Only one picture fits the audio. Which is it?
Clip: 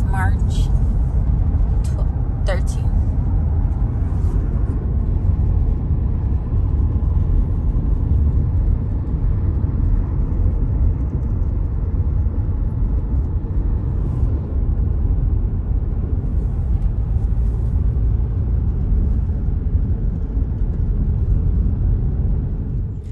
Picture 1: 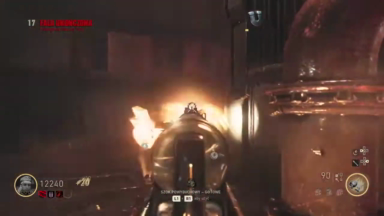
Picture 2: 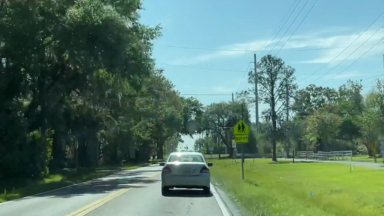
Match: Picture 2